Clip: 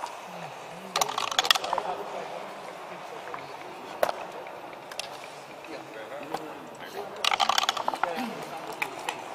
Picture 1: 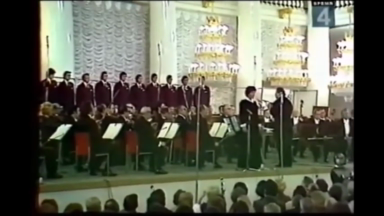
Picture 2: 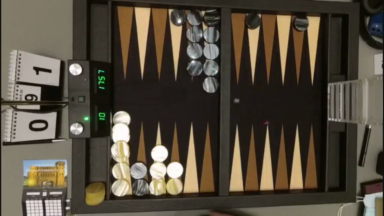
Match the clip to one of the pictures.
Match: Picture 2